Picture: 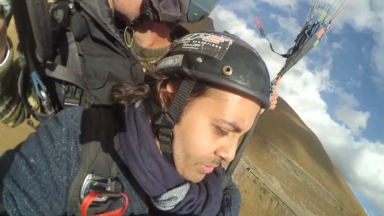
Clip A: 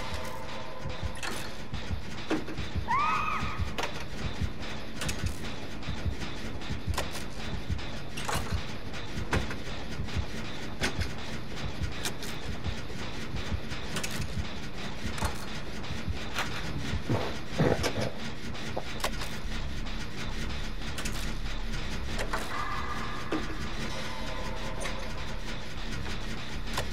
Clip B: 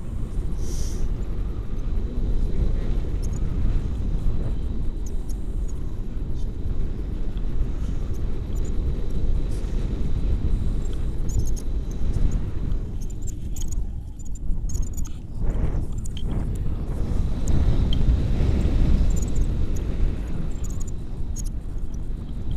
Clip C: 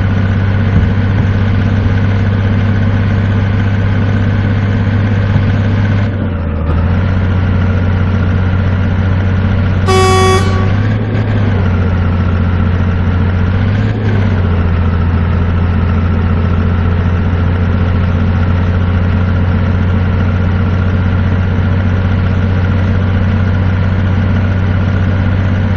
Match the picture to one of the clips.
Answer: B